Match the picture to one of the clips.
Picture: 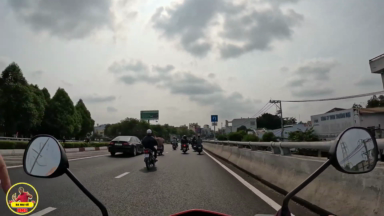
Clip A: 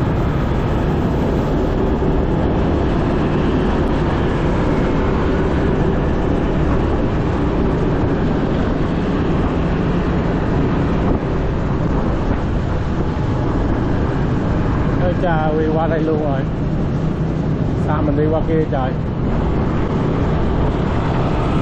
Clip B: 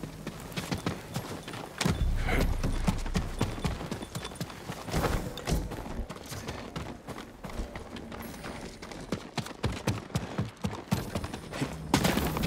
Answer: A